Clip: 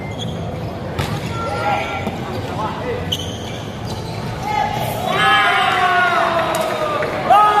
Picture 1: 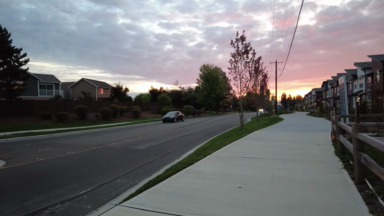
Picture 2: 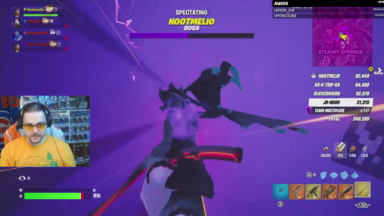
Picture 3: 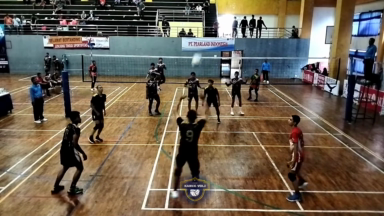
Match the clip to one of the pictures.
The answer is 3